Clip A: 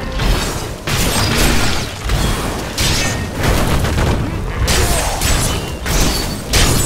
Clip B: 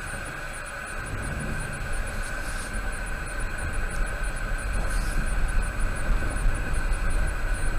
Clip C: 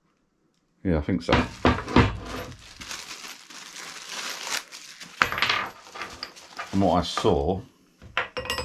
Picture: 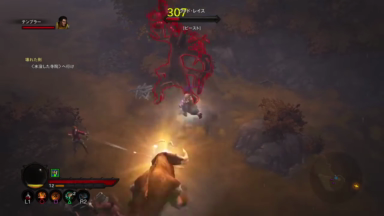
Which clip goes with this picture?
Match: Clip A